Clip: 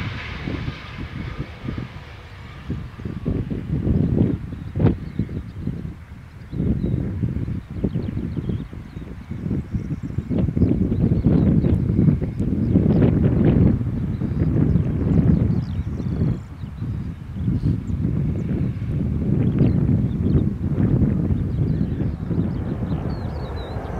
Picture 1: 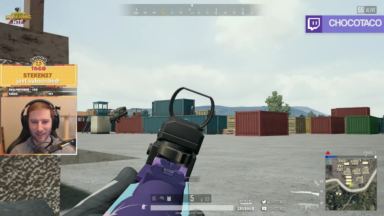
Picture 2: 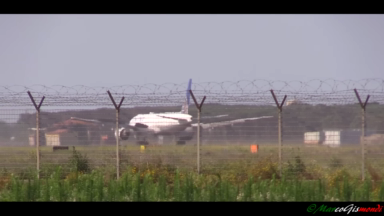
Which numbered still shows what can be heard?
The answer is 2